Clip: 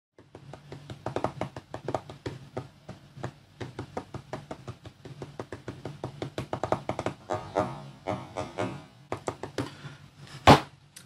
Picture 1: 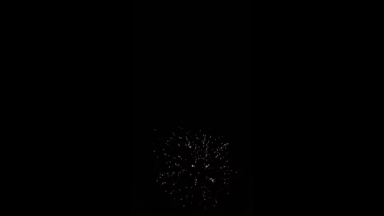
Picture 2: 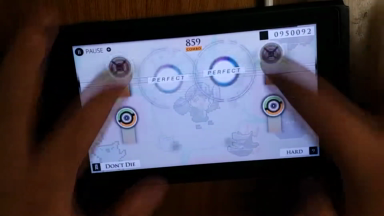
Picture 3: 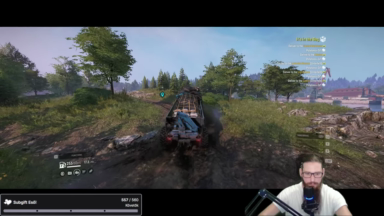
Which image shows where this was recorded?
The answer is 2